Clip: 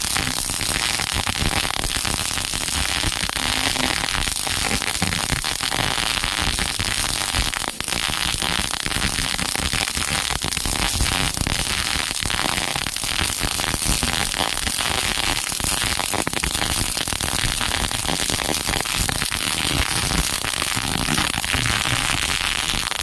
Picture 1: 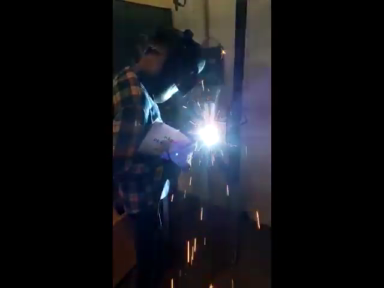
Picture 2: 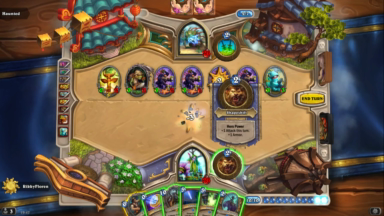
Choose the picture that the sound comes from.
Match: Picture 1